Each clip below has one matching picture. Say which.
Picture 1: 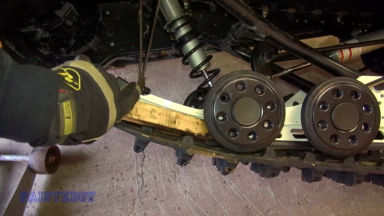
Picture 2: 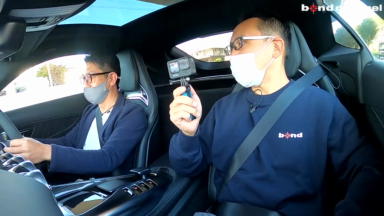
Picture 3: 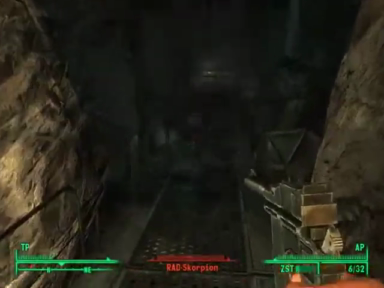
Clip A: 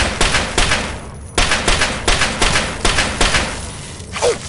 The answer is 3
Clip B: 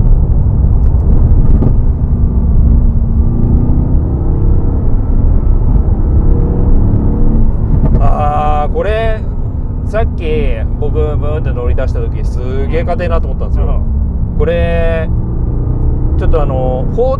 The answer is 2